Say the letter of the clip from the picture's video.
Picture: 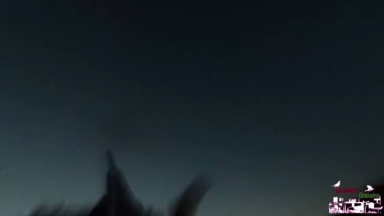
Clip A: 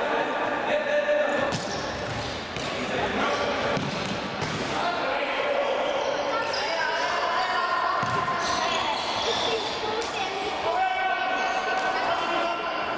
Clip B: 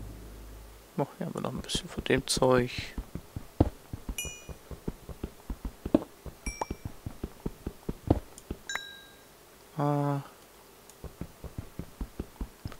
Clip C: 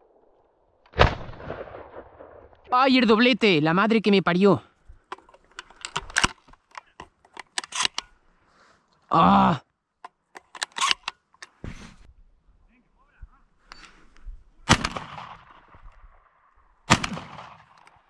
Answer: C